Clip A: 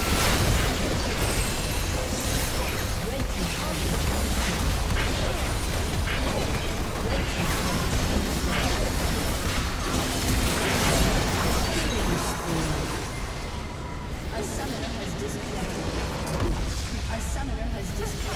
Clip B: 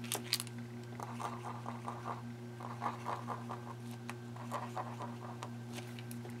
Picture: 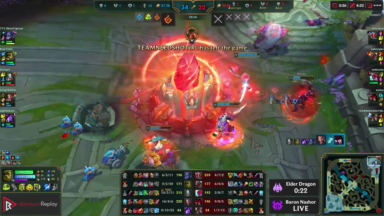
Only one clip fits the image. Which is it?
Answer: A